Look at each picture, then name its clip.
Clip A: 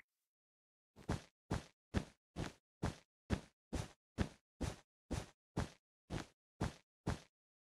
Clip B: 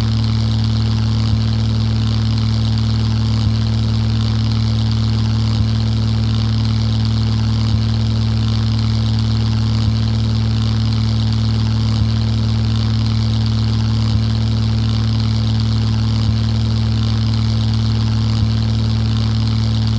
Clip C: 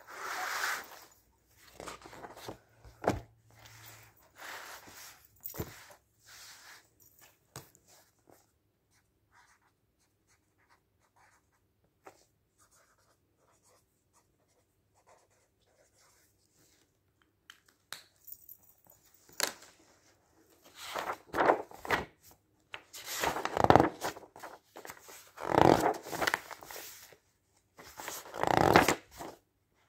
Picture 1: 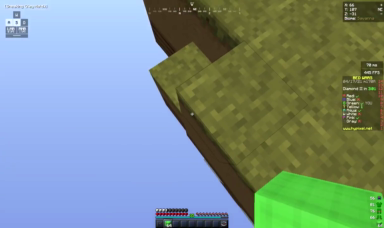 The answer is A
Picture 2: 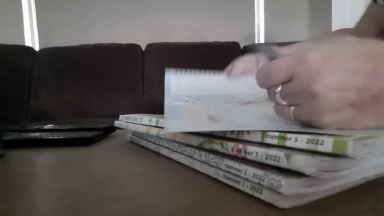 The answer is C